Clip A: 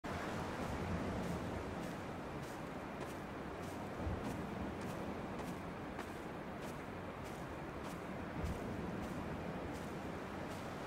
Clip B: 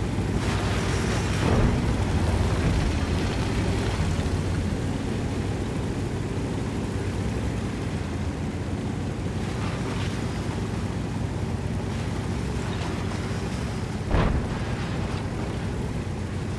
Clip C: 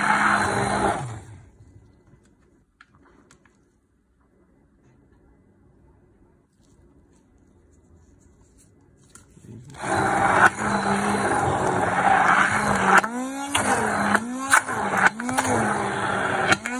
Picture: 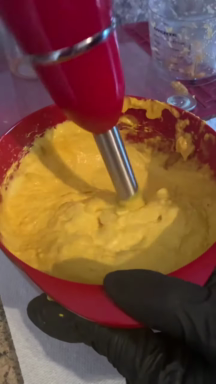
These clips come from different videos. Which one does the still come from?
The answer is C